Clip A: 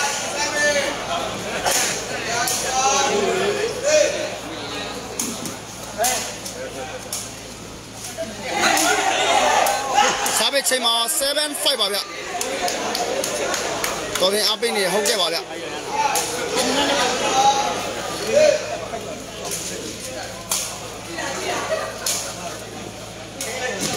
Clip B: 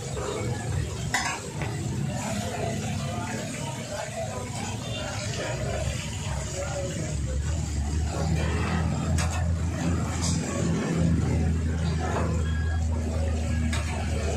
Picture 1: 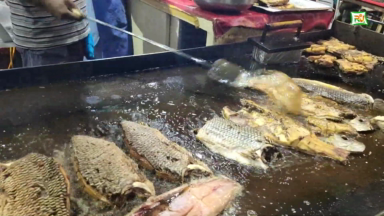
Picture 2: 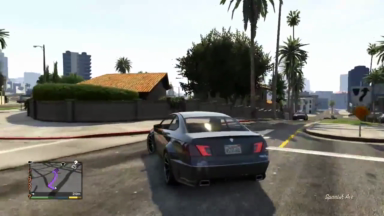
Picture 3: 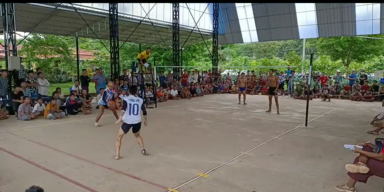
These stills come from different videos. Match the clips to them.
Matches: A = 3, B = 1